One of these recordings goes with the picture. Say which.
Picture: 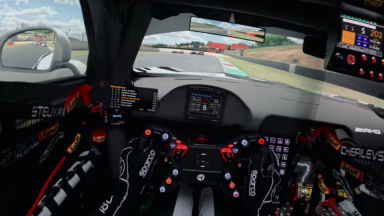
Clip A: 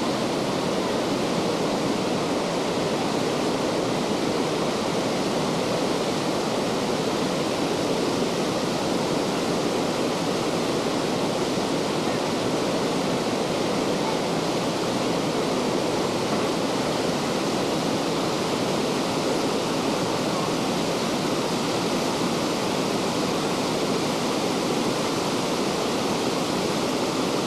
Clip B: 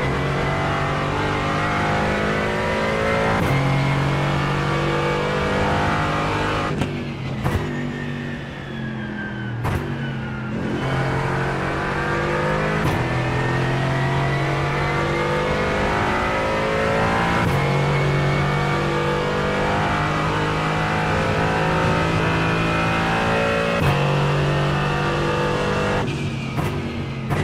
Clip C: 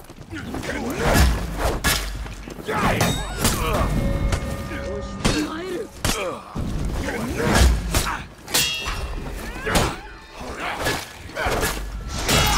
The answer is B